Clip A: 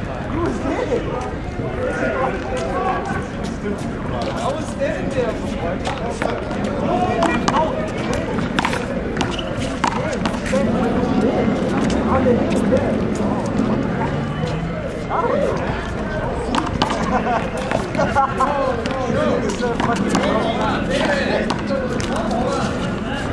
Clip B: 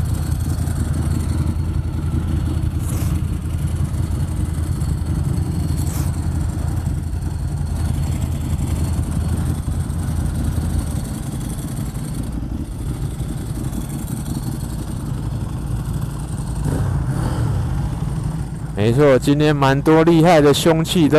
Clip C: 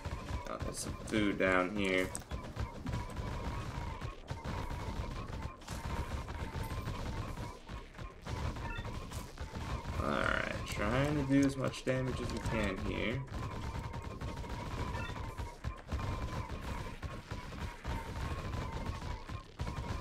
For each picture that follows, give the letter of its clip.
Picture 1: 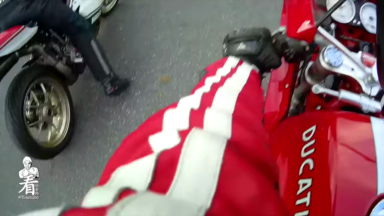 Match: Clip B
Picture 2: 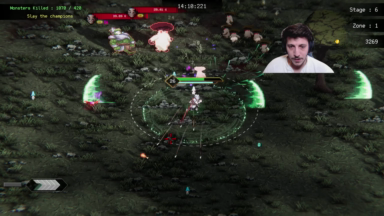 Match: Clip C